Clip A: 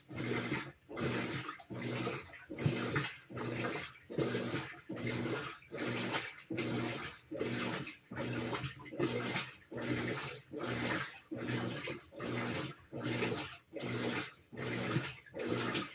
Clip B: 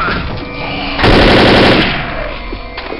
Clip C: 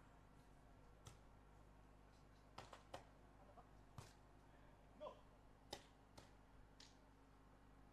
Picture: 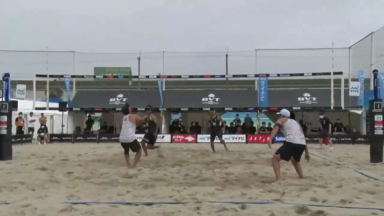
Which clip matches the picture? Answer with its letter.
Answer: C